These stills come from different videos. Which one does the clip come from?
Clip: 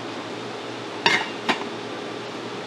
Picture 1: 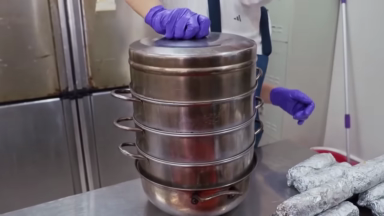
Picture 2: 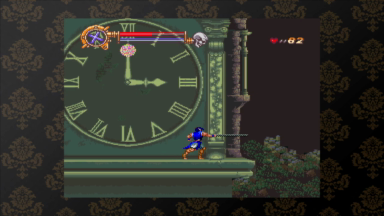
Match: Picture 1